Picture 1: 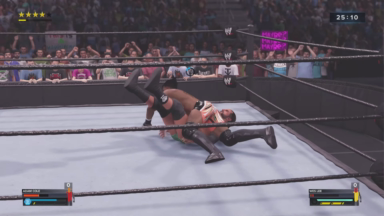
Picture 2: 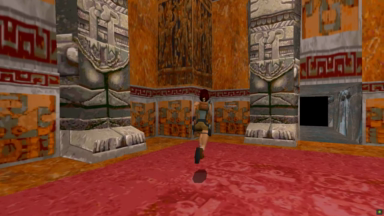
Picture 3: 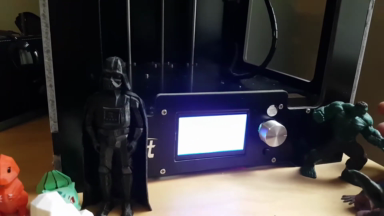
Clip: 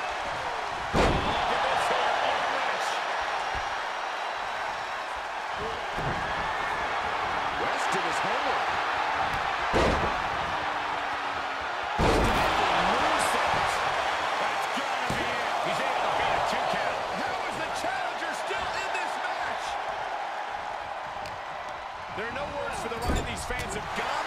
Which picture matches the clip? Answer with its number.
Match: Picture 1